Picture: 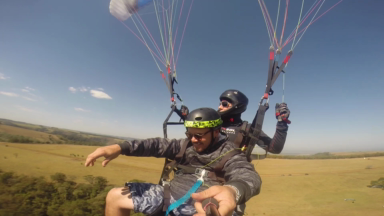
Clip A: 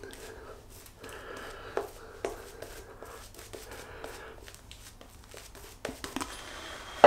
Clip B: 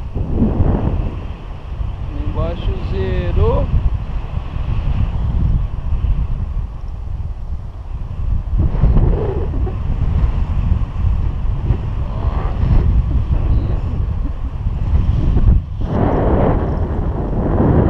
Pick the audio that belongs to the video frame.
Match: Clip B